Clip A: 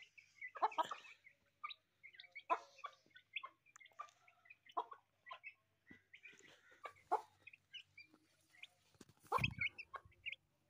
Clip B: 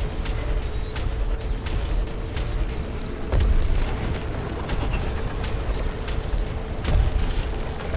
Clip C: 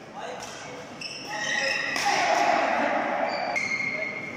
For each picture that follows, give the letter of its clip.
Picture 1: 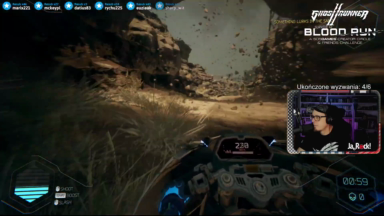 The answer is B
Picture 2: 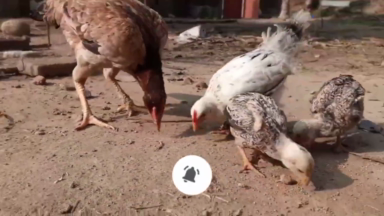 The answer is A